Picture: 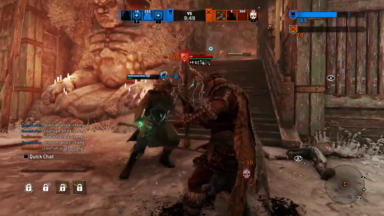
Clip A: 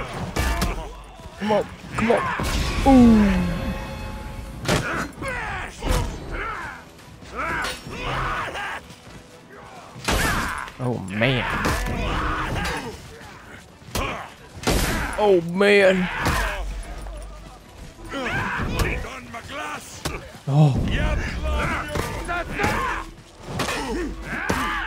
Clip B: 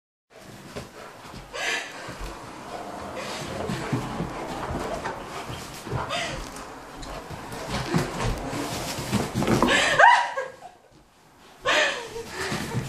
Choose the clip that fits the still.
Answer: A